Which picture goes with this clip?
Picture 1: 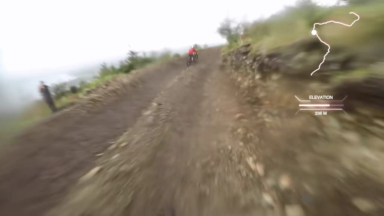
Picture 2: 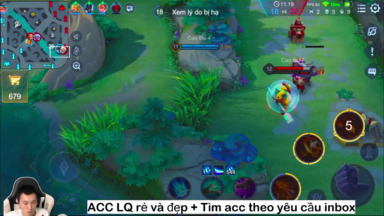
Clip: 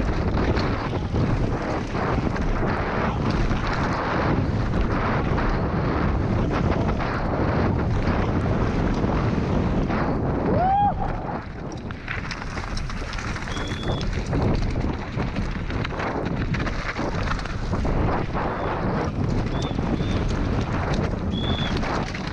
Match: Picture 1